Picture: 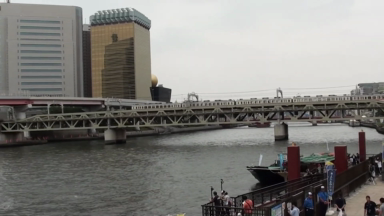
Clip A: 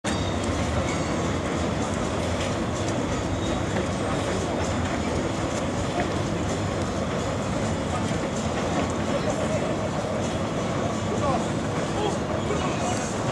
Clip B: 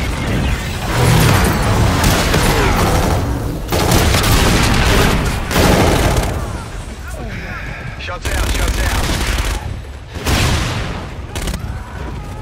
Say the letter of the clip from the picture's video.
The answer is A